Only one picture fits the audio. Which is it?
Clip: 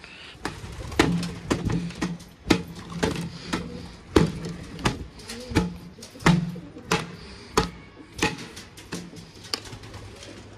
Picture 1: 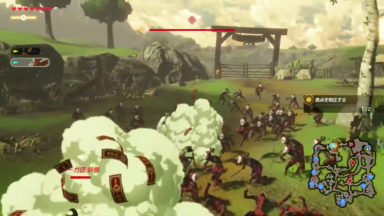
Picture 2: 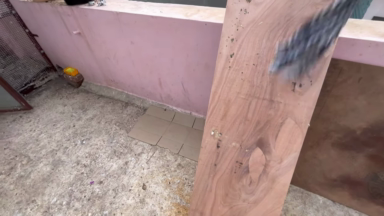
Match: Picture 2